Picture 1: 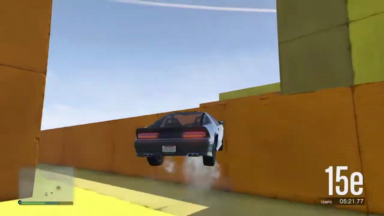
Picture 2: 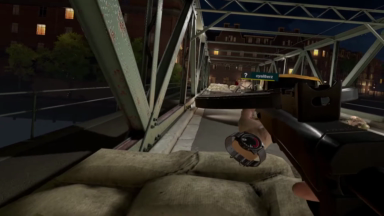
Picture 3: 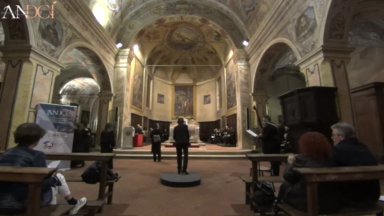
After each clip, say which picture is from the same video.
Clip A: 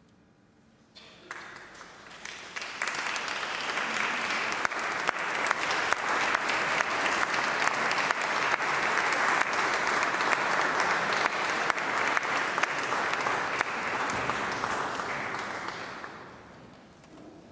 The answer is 3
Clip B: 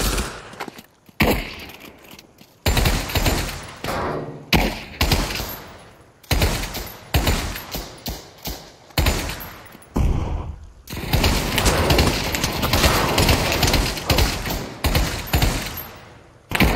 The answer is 2